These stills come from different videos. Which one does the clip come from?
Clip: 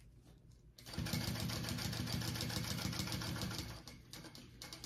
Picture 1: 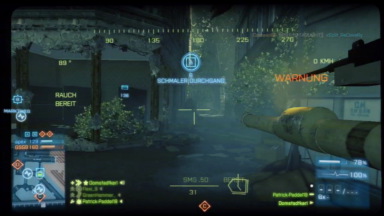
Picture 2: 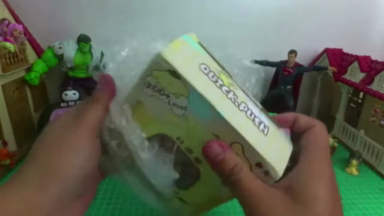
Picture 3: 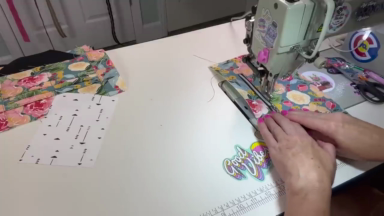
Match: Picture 3